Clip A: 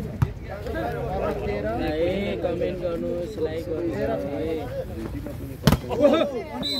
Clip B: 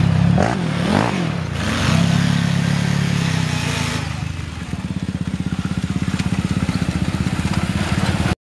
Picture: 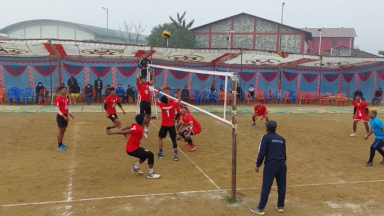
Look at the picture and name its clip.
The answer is A